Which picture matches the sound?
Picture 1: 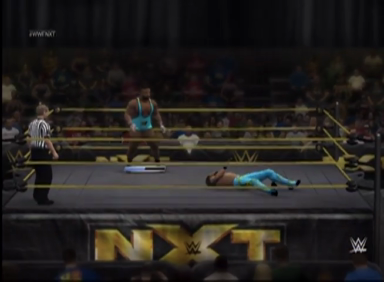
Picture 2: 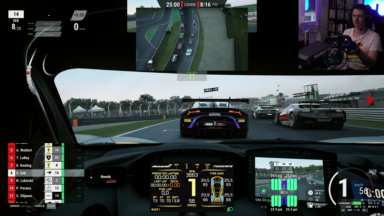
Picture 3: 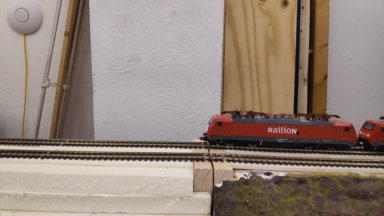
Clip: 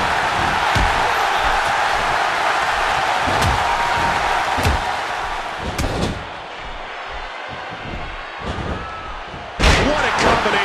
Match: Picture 1